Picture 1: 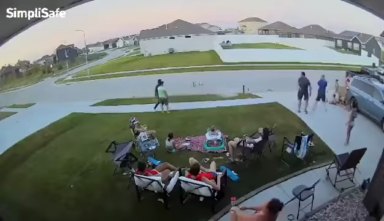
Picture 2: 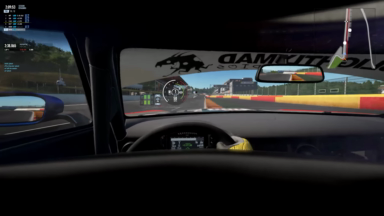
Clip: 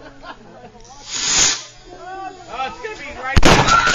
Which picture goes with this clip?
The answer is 1